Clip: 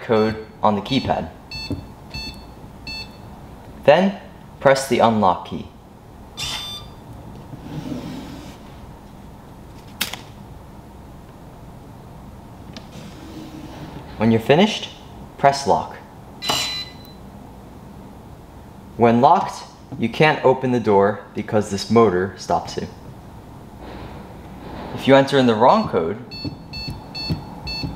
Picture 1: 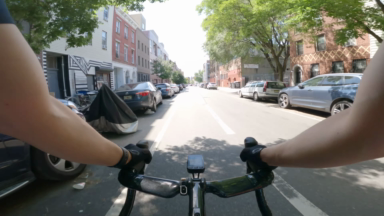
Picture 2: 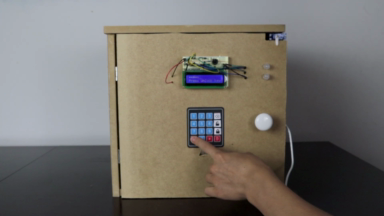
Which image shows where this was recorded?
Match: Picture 2